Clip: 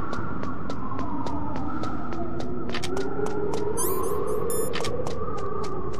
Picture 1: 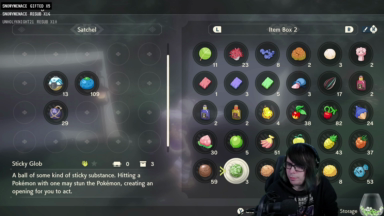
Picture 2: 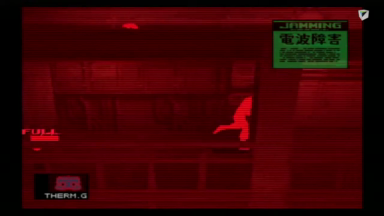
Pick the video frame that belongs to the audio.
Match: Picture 2